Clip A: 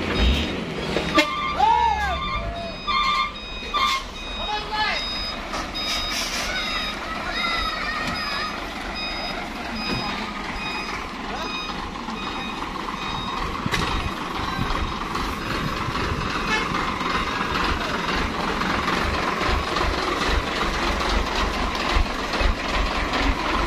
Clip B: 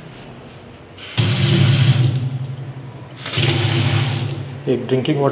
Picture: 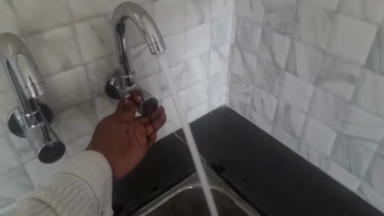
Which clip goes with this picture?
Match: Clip B